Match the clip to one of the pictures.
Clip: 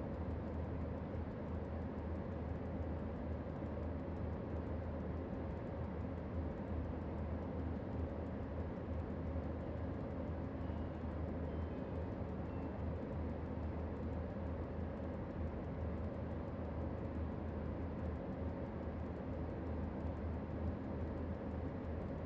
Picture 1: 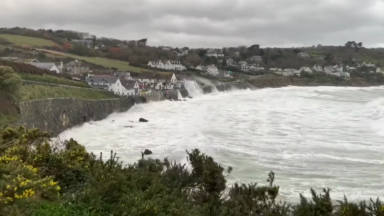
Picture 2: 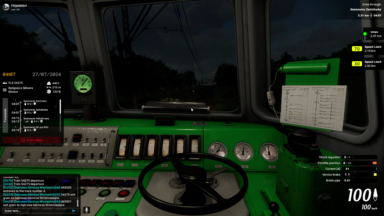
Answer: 2